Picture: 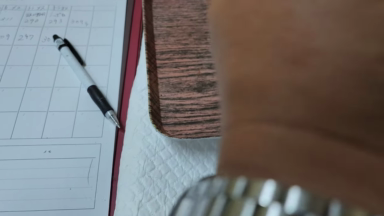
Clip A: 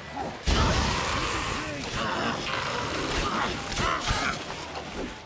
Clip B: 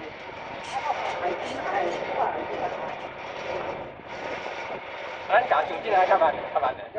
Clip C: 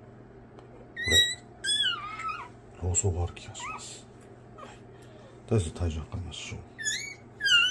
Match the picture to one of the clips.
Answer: C